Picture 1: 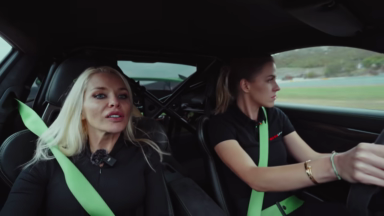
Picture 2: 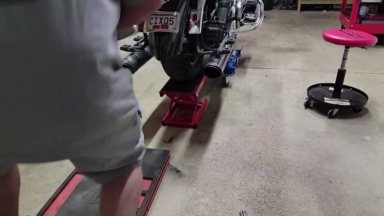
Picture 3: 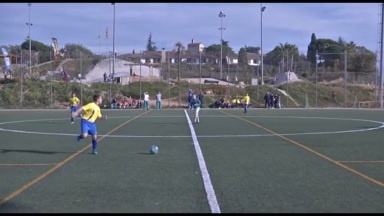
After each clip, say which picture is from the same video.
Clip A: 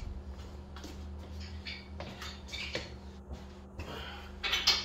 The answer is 2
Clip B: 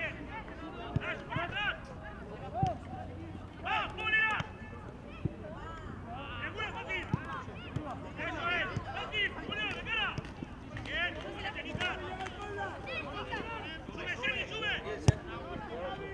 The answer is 3